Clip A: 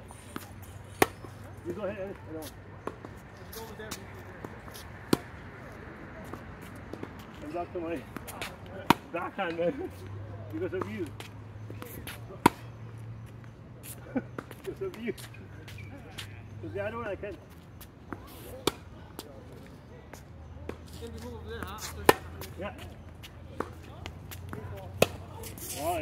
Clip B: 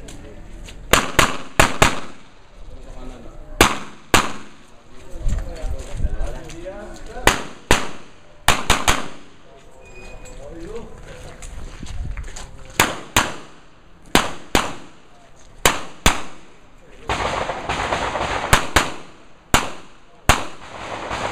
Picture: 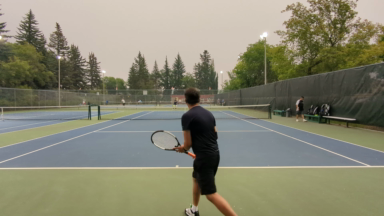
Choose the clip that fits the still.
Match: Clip A